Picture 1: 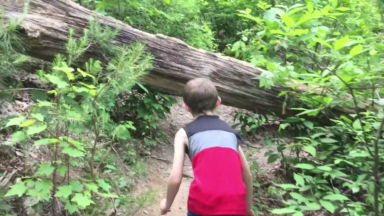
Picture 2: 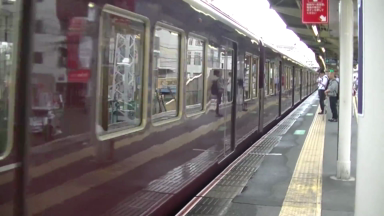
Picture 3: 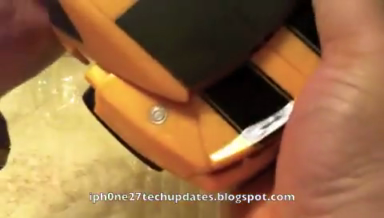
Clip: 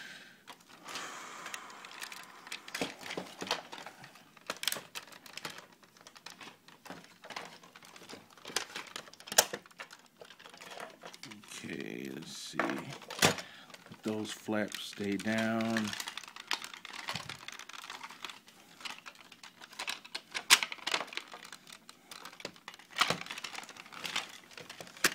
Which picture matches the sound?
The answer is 3